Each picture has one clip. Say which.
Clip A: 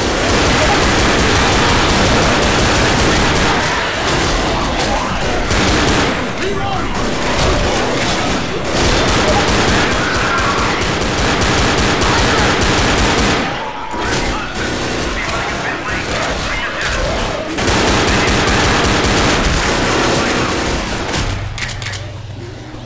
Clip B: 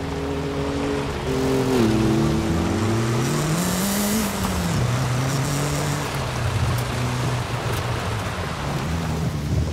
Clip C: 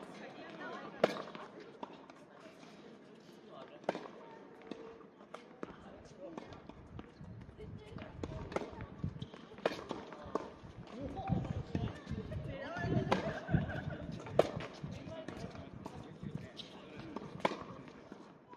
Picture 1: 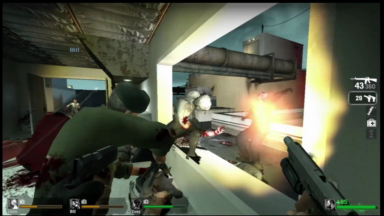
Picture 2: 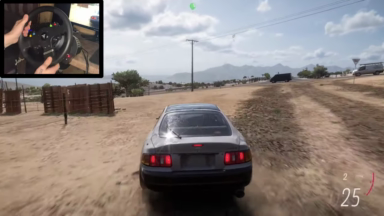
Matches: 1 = A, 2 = B